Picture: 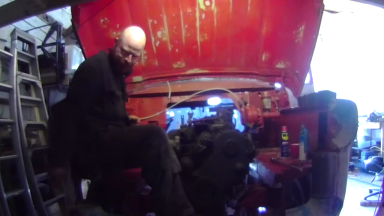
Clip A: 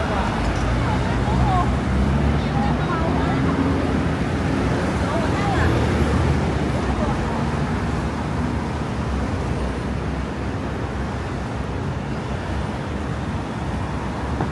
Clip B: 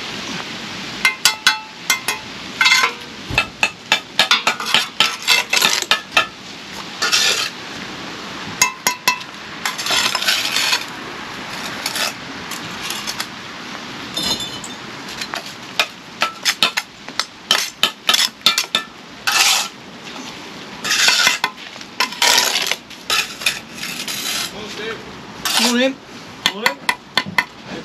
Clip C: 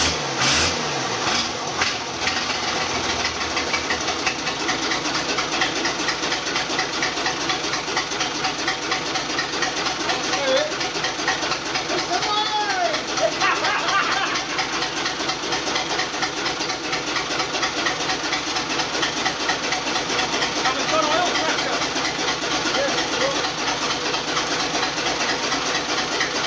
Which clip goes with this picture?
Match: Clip C